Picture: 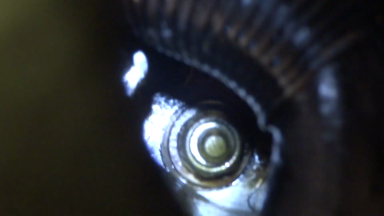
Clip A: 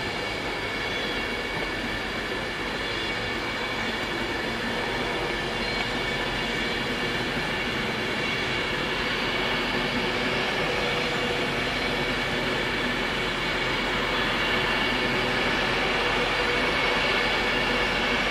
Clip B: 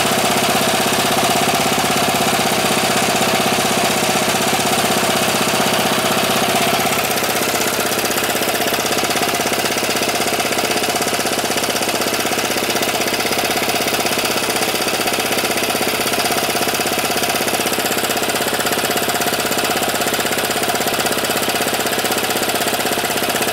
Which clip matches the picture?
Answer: B